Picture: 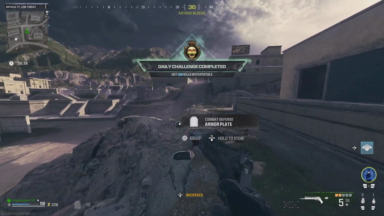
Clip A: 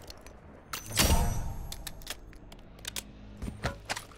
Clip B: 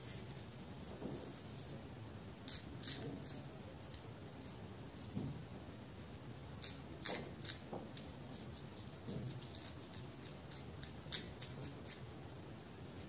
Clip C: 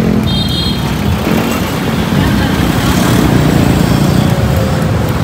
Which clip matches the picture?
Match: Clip A